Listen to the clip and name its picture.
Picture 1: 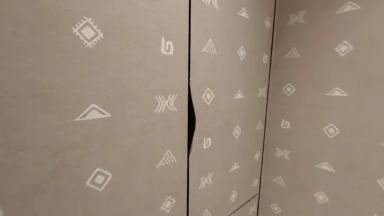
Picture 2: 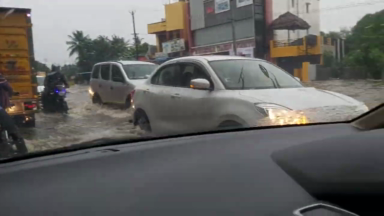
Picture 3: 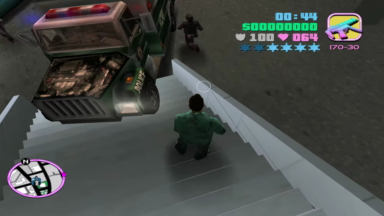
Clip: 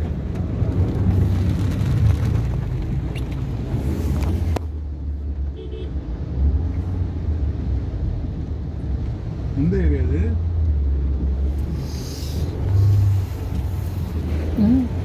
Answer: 2